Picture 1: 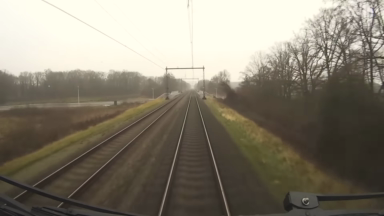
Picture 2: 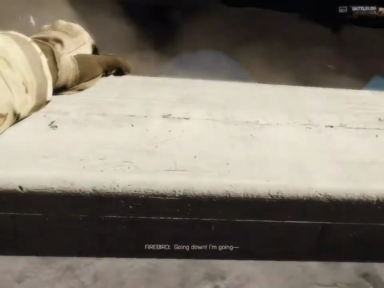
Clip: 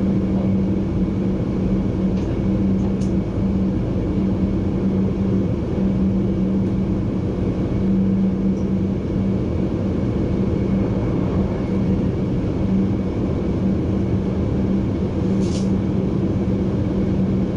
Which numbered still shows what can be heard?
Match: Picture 1